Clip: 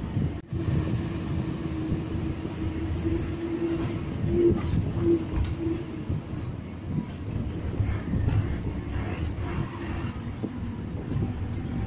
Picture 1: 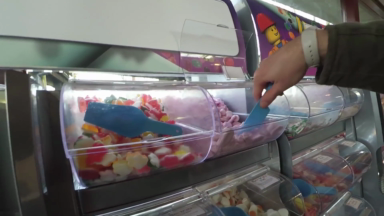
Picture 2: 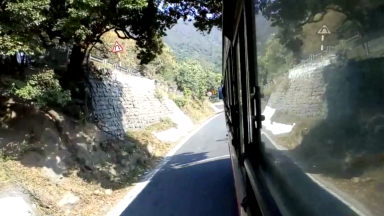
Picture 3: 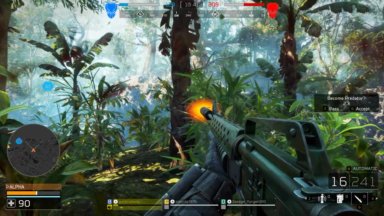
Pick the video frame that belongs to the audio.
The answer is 2